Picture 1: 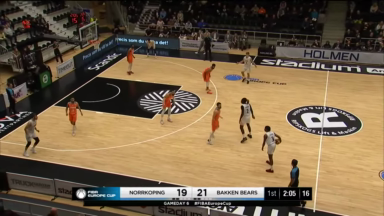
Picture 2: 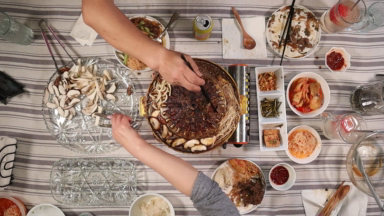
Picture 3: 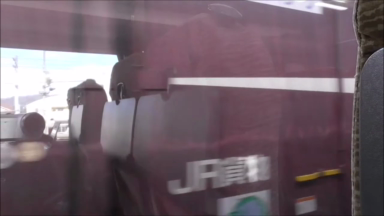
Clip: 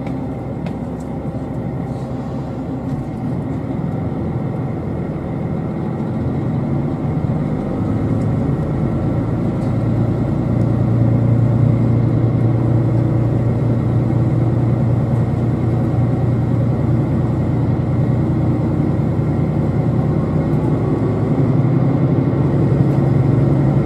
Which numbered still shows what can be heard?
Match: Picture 3